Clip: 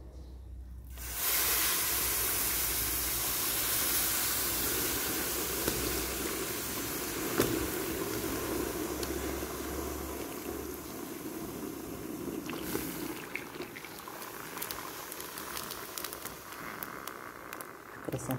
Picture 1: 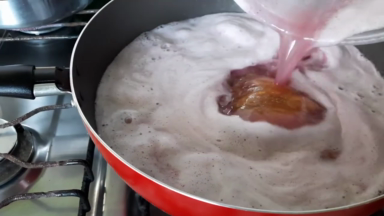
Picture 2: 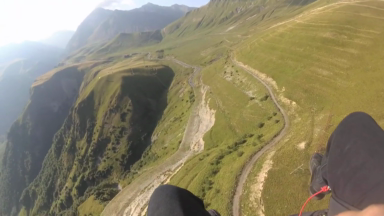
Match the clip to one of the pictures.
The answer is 1